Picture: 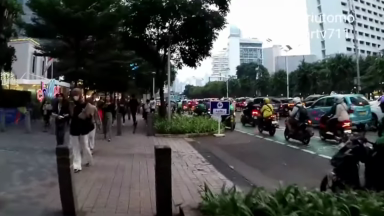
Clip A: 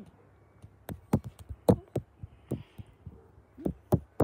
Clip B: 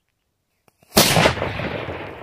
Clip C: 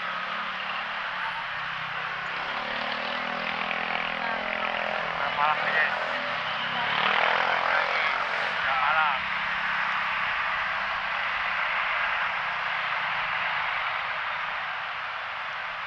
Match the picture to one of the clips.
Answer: C